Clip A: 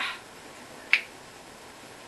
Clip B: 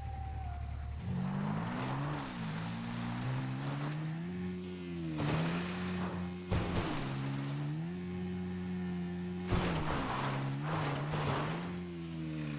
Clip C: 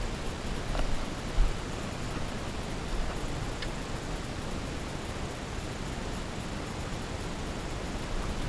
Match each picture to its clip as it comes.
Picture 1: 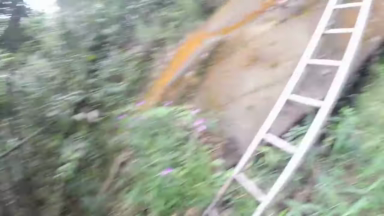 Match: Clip C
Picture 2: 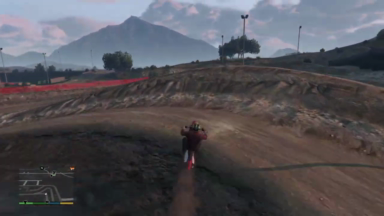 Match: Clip B